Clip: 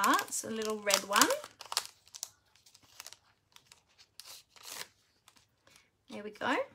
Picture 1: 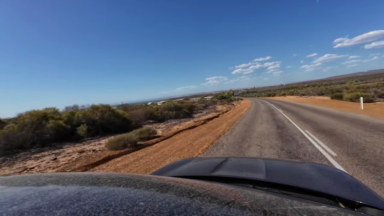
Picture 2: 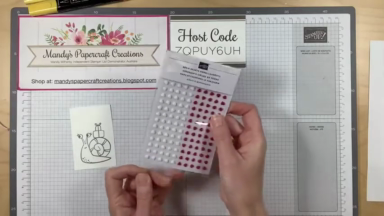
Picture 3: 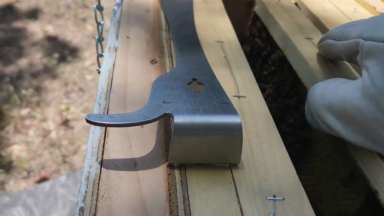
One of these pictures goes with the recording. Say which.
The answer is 2